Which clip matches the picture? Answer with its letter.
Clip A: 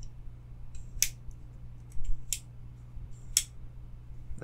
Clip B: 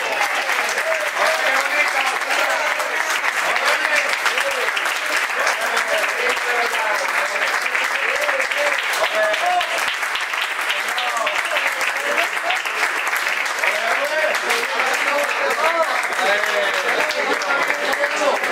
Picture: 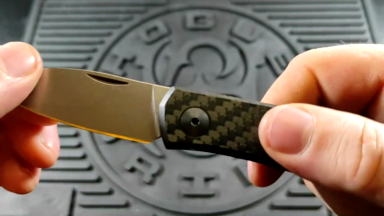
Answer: A